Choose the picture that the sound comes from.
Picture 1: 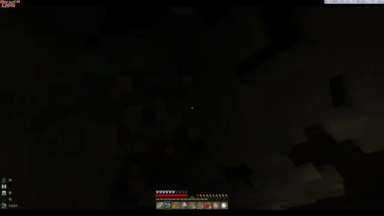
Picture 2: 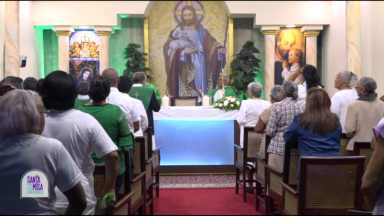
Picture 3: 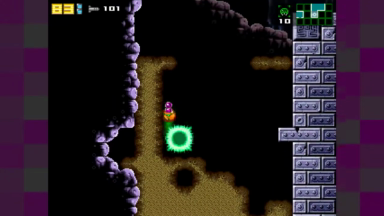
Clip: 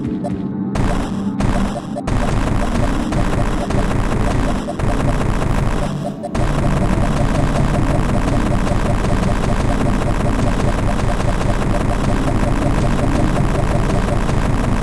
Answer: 3